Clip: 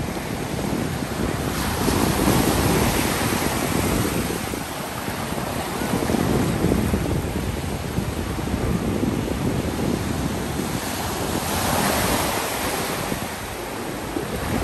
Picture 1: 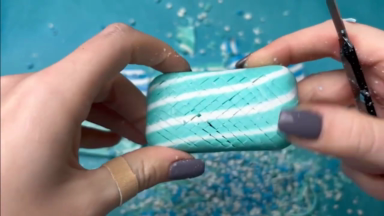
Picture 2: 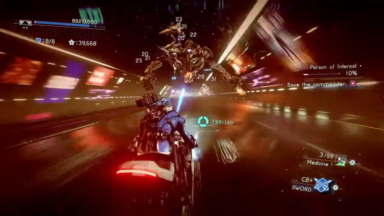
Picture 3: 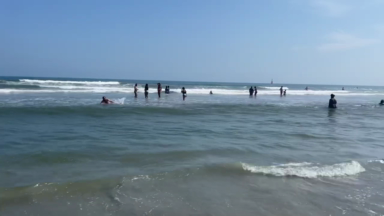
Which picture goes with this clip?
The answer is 3